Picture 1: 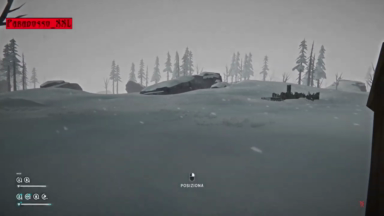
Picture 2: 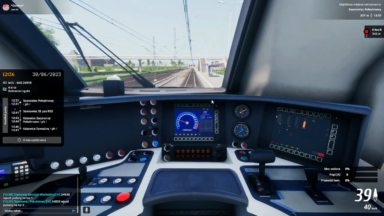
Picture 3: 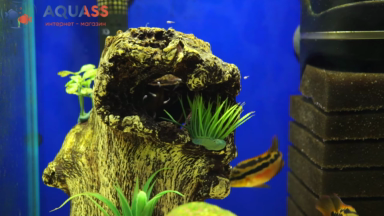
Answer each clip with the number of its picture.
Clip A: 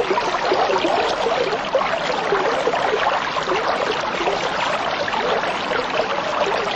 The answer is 3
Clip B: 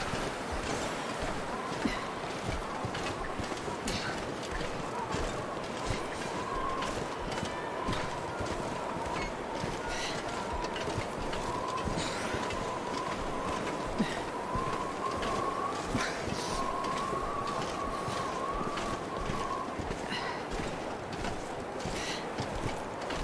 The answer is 1